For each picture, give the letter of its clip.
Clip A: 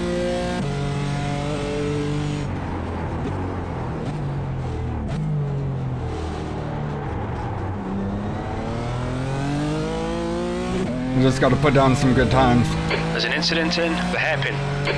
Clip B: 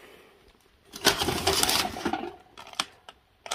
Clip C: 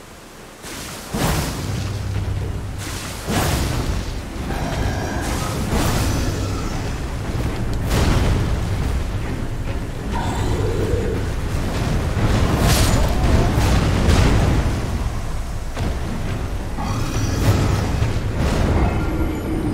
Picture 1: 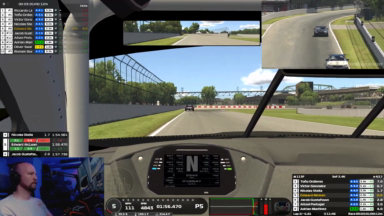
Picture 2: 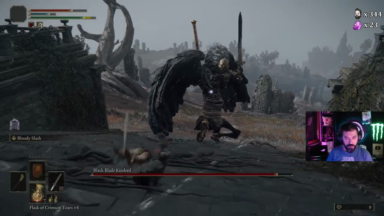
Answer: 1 A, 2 C